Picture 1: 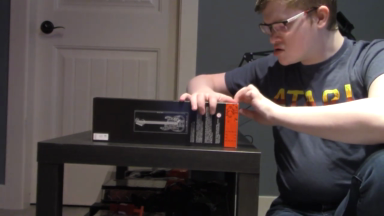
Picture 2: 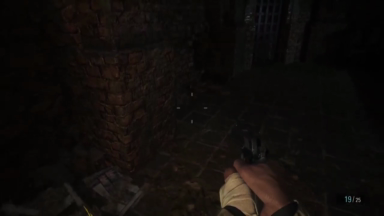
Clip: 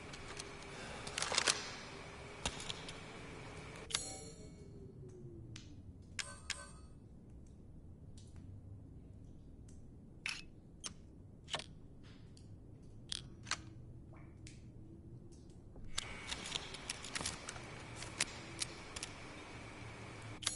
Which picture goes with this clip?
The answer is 2